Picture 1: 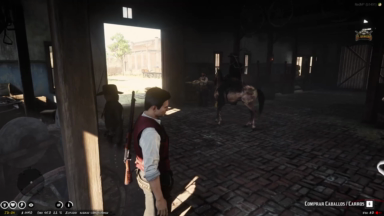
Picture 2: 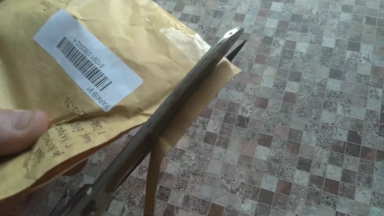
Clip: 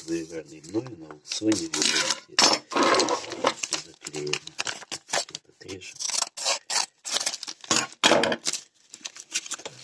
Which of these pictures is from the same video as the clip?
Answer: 2